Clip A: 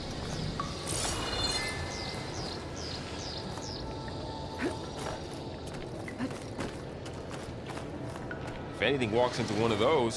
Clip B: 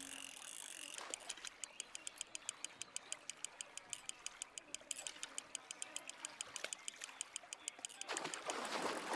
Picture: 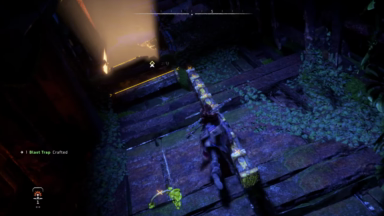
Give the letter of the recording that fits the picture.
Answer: A